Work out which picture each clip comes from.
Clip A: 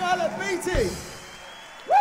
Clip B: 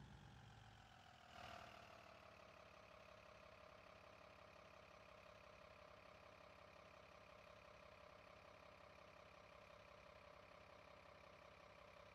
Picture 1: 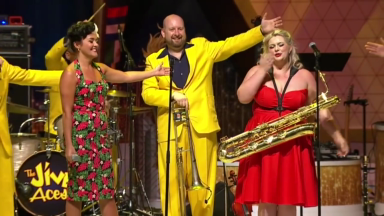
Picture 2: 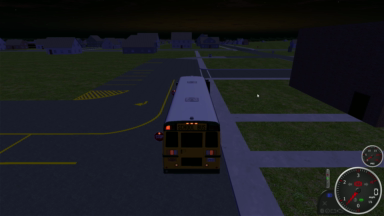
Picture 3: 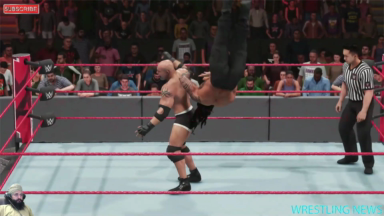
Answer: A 1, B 2